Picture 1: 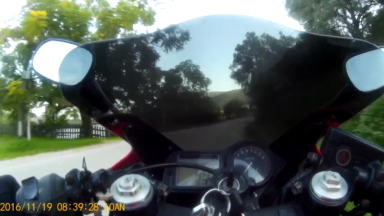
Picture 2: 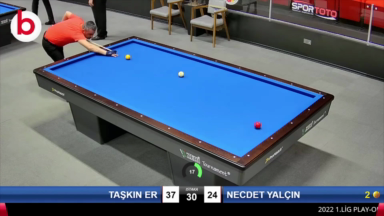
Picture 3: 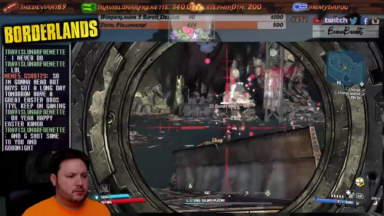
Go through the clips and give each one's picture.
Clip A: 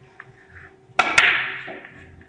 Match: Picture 2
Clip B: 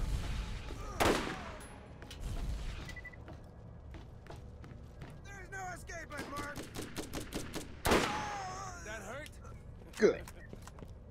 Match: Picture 3